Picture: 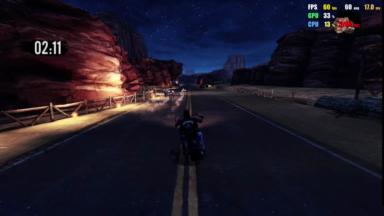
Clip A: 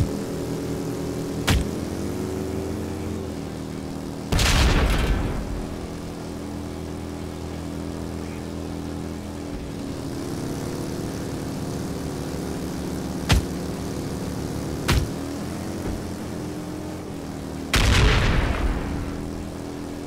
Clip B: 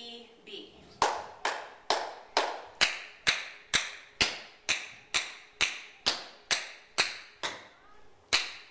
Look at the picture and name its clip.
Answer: A